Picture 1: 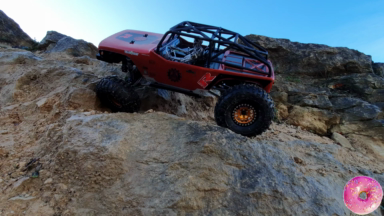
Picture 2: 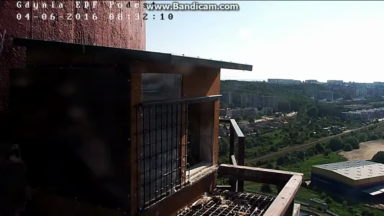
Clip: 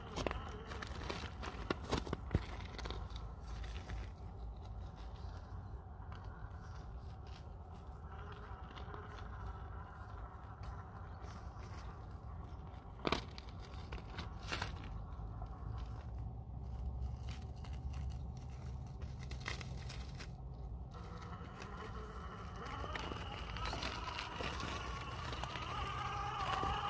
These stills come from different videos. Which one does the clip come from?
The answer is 1